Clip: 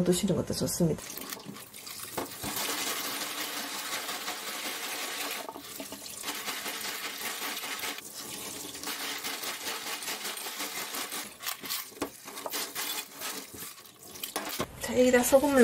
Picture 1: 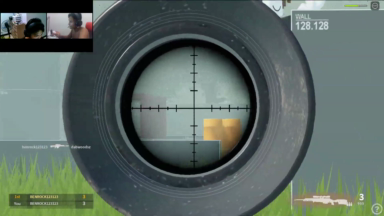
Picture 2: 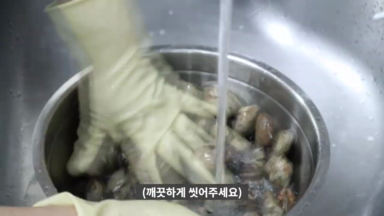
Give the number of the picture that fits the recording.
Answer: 2